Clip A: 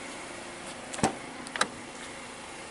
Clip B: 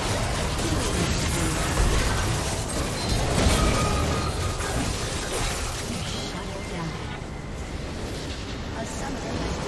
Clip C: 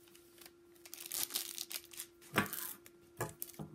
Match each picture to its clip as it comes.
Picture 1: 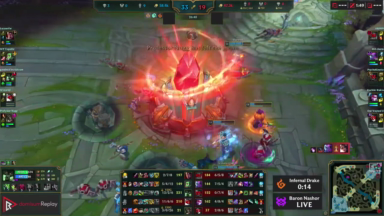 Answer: B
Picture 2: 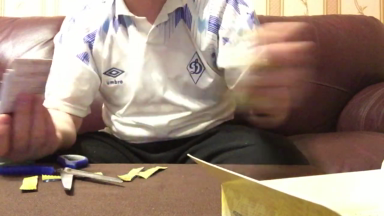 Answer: C